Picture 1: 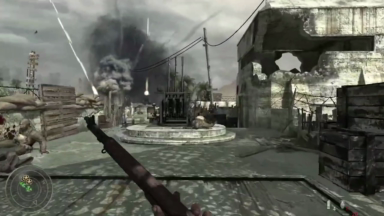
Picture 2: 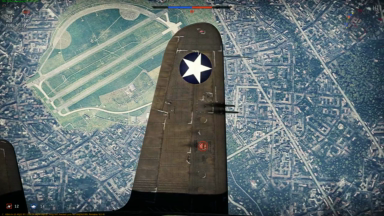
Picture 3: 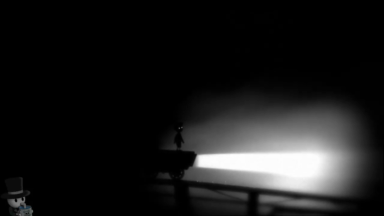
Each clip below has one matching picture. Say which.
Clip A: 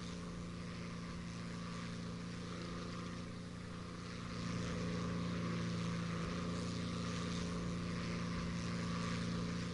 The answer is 2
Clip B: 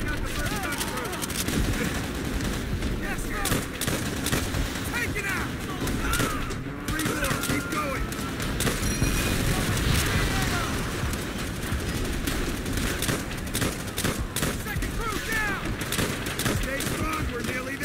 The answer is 1